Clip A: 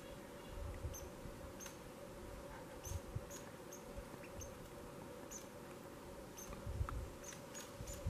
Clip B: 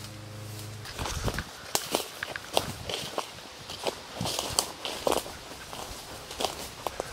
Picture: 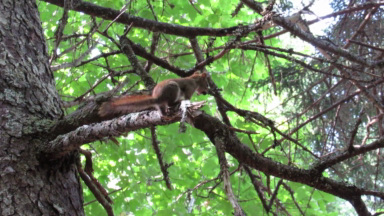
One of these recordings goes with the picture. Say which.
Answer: A